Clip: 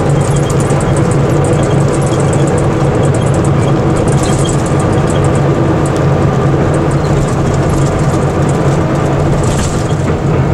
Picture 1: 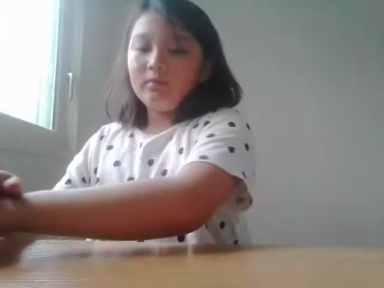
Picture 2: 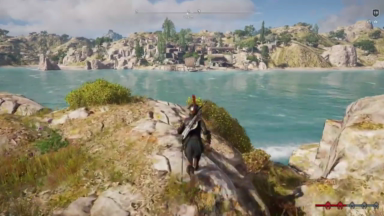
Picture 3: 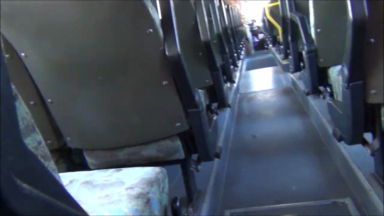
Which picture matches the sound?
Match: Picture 3